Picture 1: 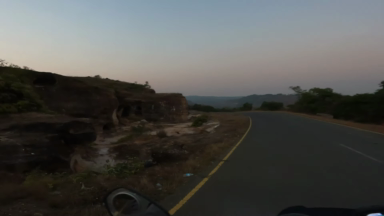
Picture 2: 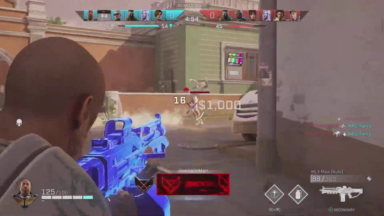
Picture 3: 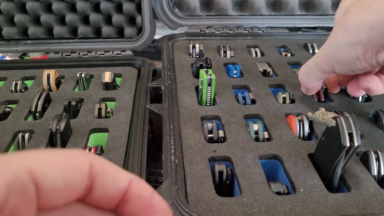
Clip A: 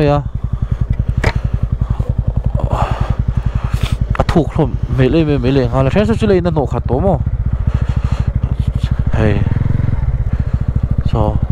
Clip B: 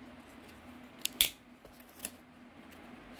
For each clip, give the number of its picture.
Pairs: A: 1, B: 3